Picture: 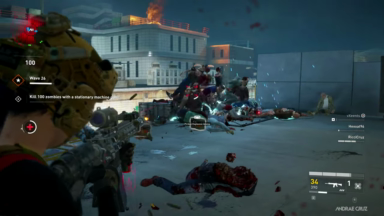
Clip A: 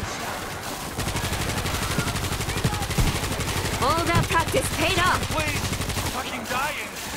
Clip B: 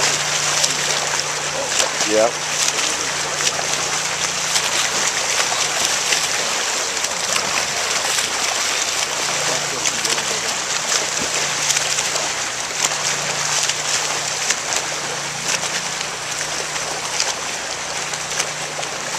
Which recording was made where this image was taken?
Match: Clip A